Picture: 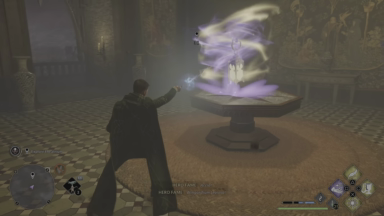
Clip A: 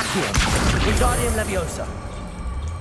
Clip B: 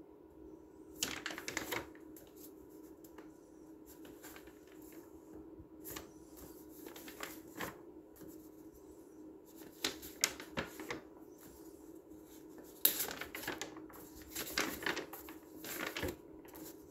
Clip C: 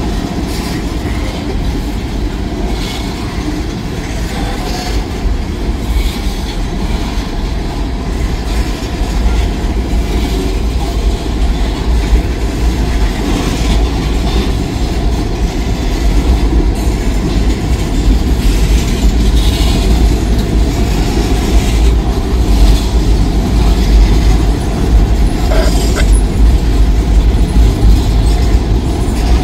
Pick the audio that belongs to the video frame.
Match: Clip A